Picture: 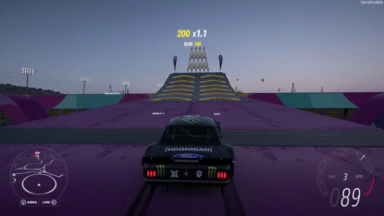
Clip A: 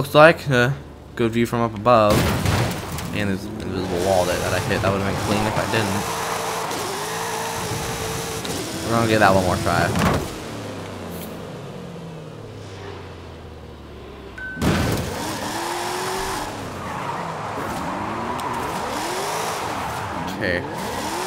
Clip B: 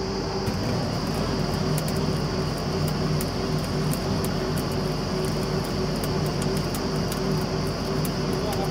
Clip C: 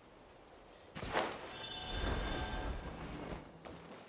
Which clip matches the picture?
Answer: A